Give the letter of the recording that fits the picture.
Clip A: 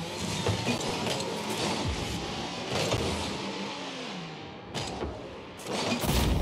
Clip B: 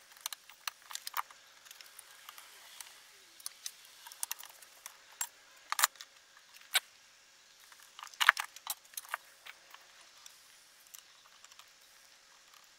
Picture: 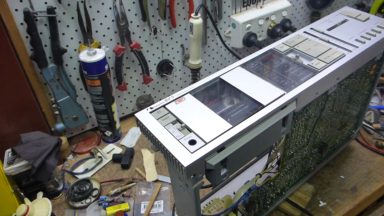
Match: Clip B